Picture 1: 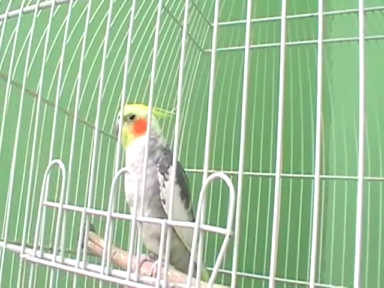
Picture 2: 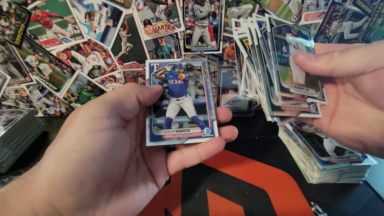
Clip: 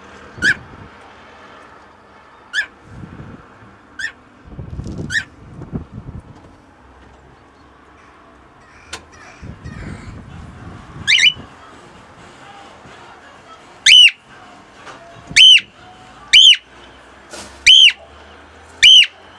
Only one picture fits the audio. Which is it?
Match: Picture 1